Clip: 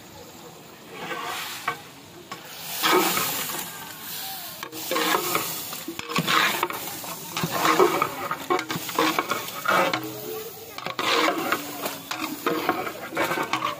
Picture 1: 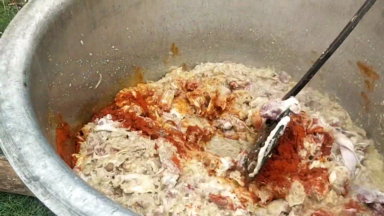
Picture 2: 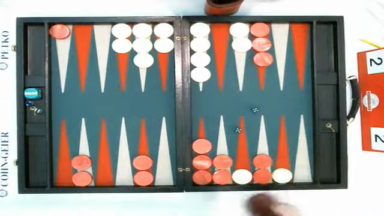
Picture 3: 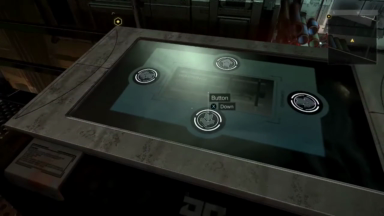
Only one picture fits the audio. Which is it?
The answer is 1